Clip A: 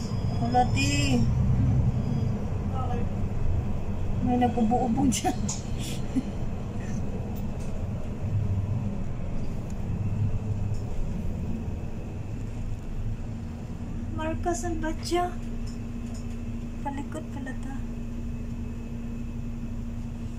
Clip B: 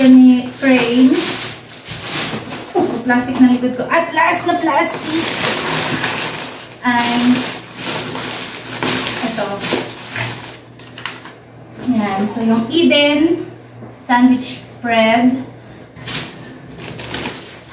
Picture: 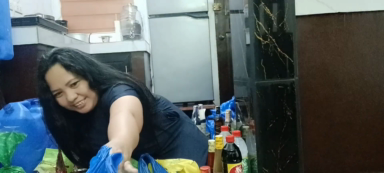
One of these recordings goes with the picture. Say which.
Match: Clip B